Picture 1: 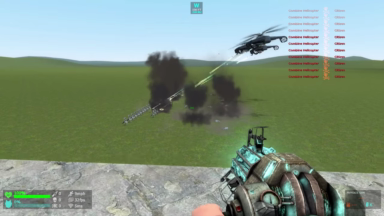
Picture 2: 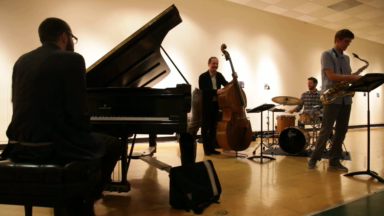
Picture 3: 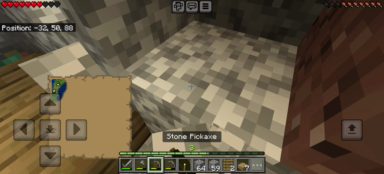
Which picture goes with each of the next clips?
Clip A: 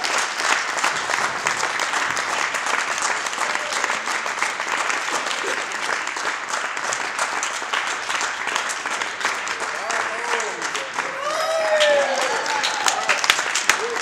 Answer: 2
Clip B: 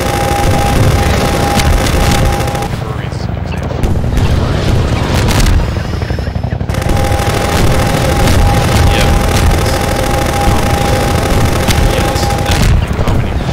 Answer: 1